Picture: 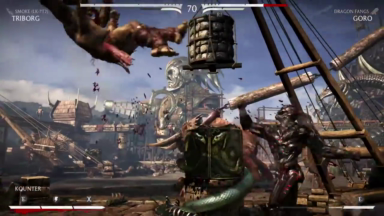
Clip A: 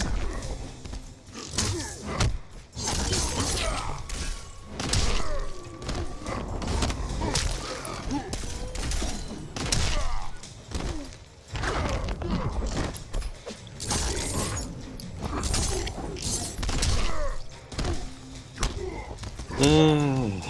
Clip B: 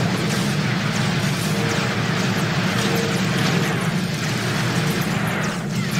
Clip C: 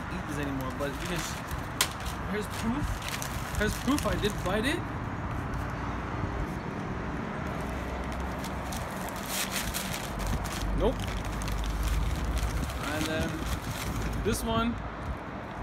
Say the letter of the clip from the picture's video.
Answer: A